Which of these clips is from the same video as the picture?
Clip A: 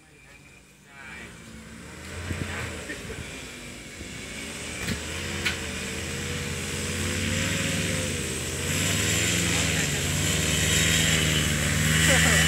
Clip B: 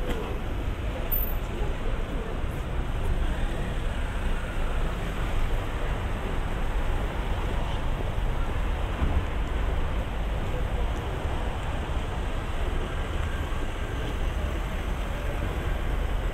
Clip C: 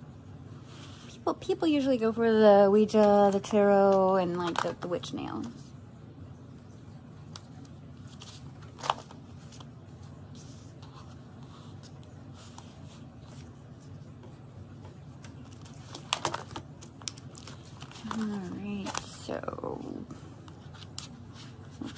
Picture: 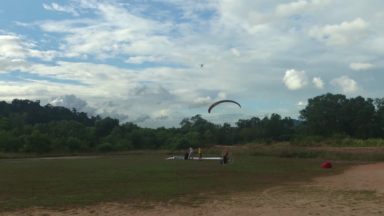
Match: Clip A